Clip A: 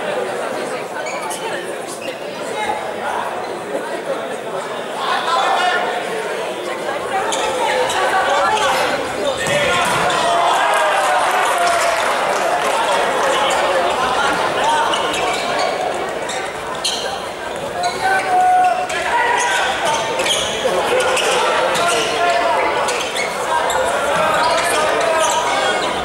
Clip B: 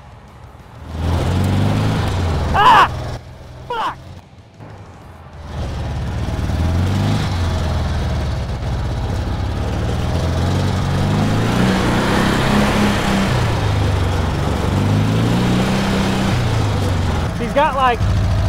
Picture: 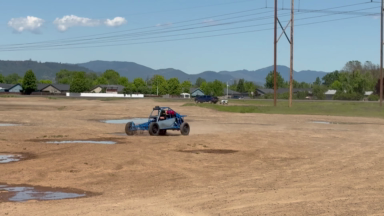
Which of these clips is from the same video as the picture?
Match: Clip B